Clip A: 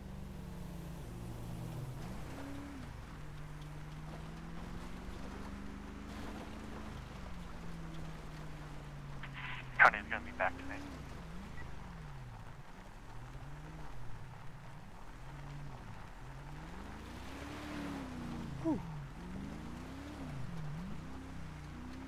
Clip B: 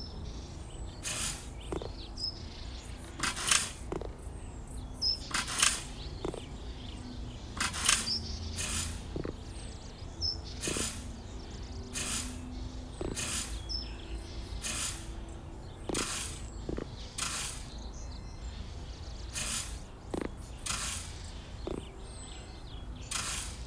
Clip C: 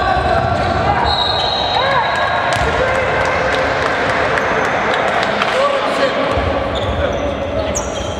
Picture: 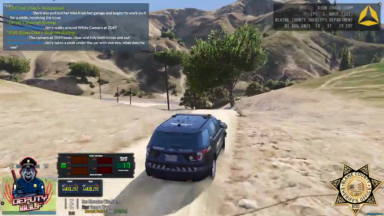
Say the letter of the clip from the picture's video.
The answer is A